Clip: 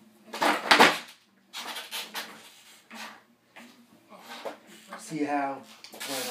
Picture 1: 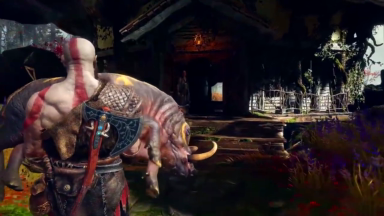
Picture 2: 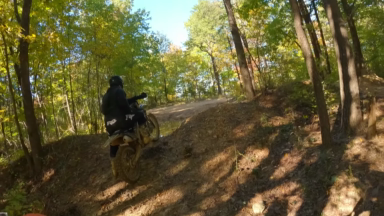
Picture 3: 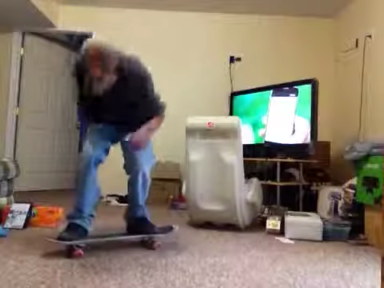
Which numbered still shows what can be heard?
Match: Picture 3